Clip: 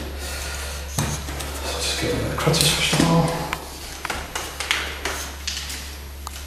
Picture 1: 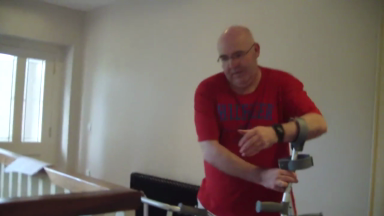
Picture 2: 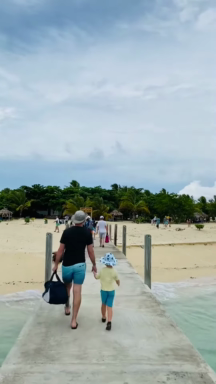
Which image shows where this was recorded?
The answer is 1